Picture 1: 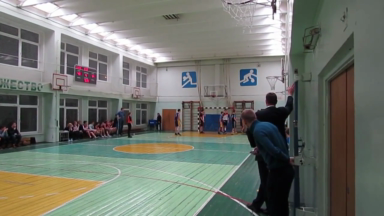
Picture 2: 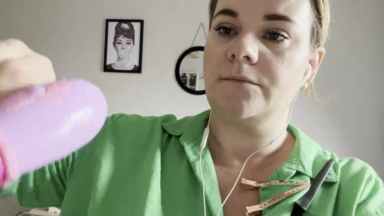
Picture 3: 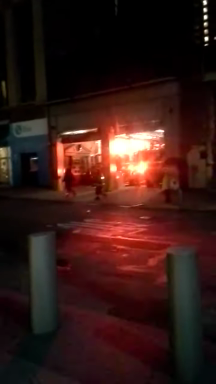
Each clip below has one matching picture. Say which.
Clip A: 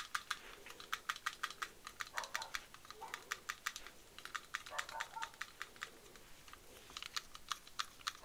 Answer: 2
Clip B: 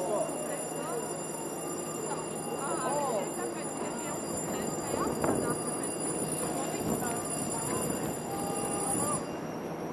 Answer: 3